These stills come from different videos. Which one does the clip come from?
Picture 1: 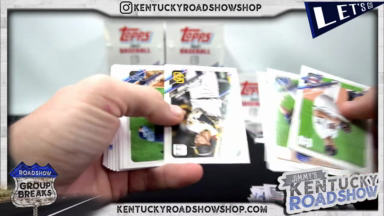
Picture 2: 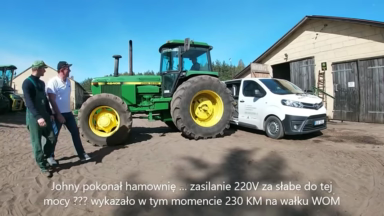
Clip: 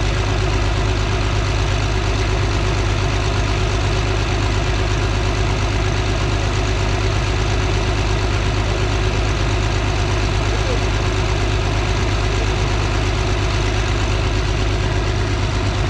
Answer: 2